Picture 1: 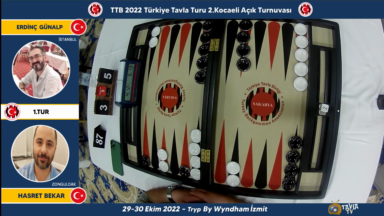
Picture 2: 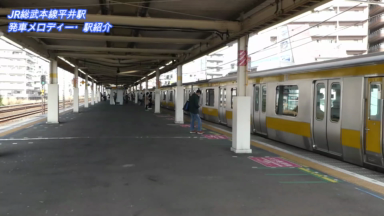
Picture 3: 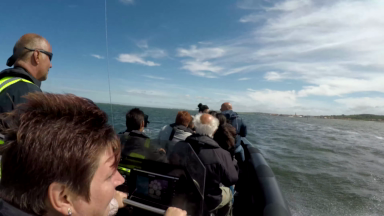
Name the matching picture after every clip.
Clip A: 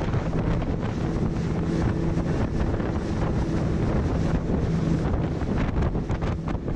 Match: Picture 3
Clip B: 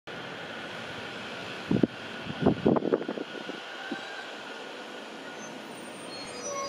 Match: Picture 2